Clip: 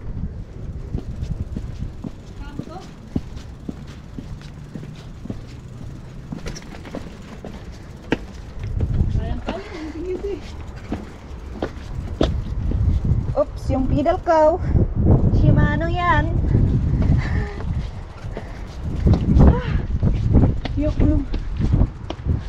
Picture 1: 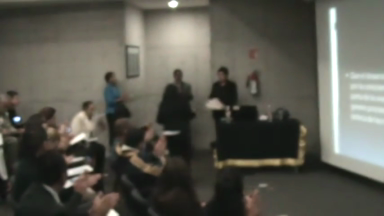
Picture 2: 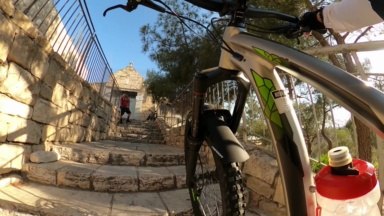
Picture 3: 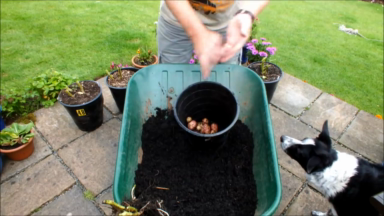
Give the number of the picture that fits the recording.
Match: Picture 2